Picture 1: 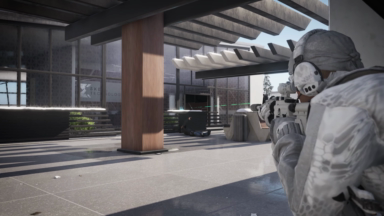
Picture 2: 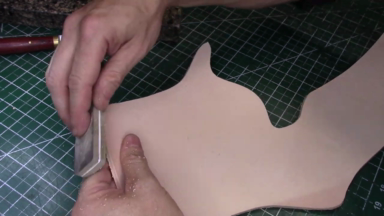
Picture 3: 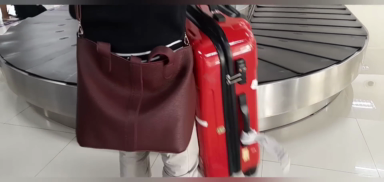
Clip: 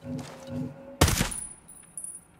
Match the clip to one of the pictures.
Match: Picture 1